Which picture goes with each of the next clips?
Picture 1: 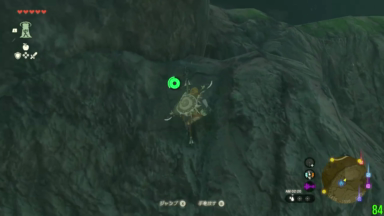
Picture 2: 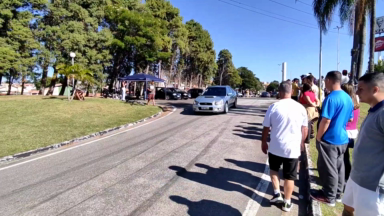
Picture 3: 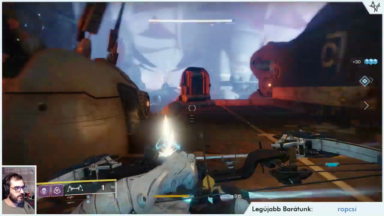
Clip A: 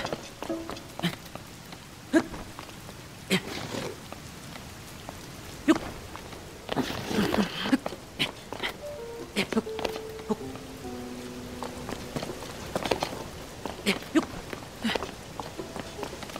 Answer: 1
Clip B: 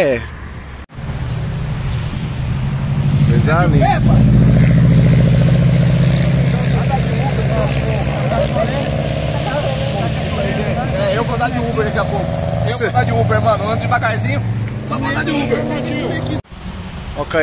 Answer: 2